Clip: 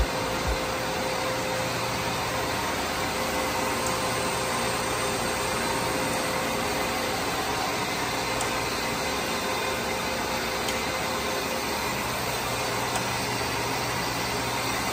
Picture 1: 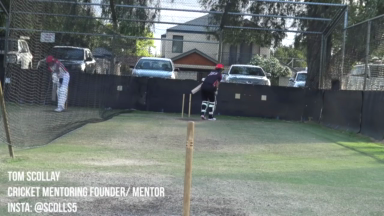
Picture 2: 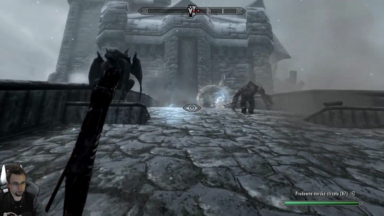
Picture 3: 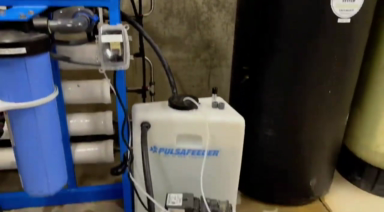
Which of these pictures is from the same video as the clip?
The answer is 3